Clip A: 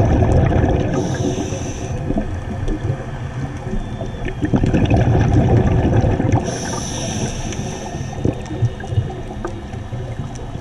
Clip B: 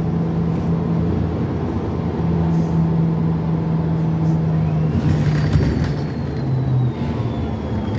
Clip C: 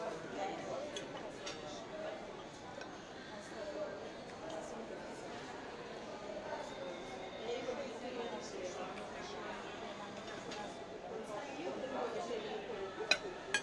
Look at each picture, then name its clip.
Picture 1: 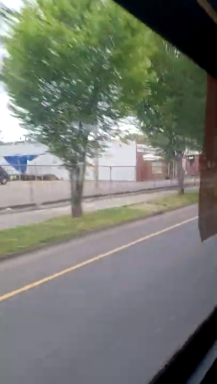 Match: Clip B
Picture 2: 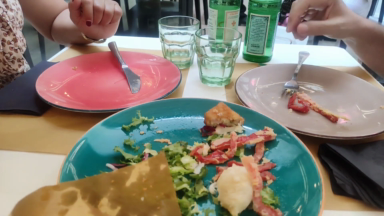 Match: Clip C